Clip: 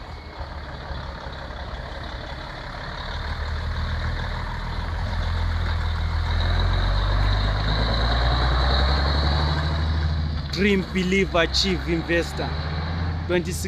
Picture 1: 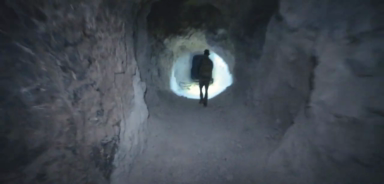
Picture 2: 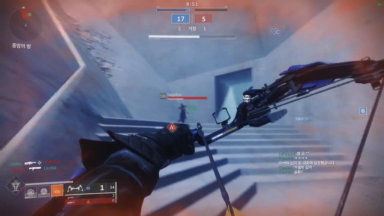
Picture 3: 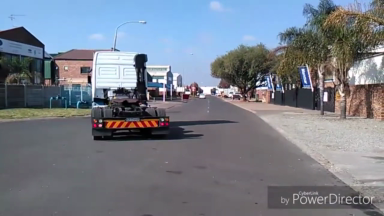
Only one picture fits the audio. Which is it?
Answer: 3